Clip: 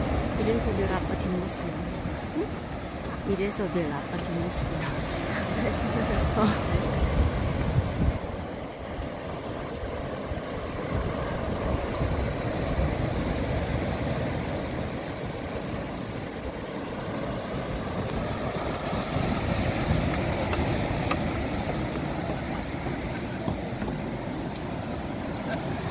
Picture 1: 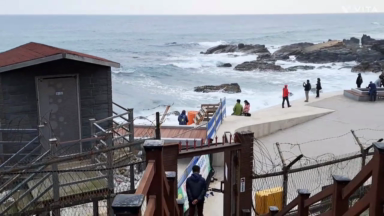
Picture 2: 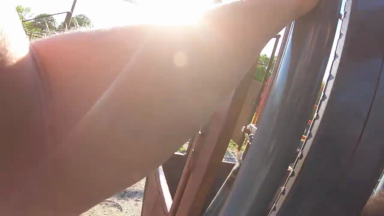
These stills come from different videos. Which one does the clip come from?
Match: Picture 1